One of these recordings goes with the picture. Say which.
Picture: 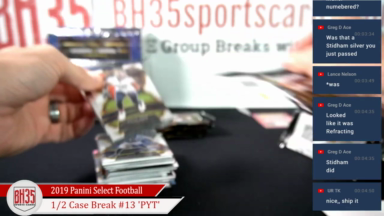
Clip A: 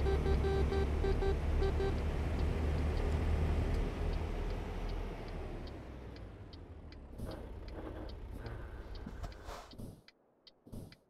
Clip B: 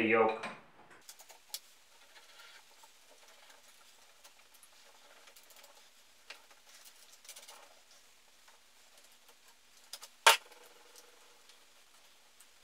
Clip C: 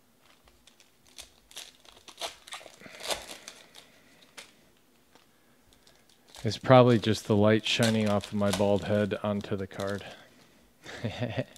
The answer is C